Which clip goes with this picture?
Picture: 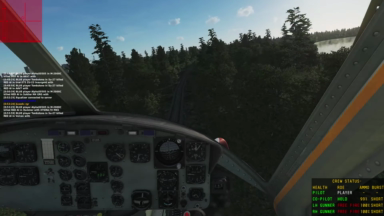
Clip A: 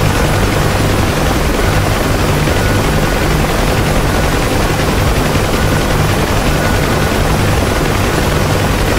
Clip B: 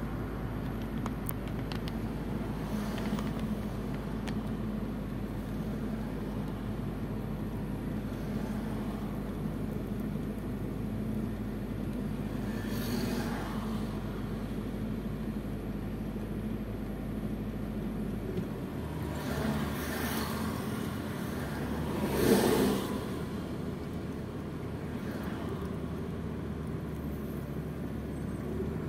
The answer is A